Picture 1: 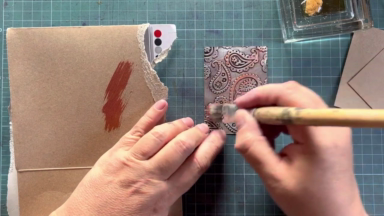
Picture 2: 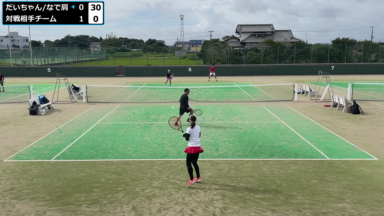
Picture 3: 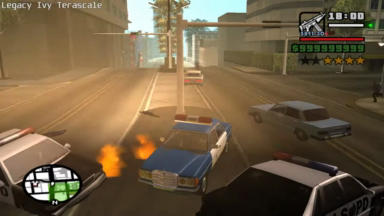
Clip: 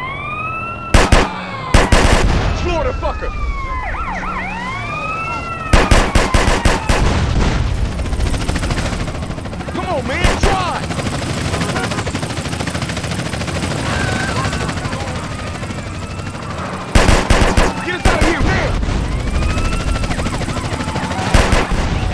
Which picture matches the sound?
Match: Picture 3